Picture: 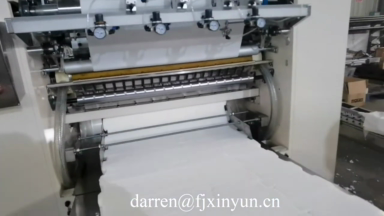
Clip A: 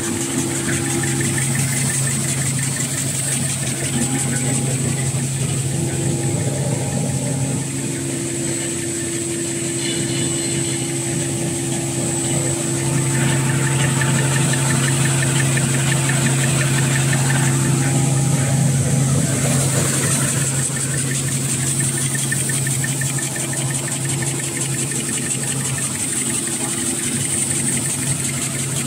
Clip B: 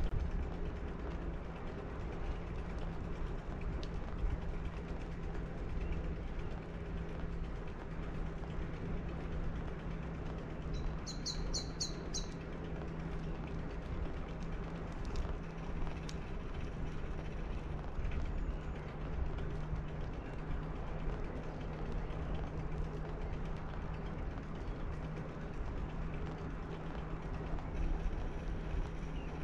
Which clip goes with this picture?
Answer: A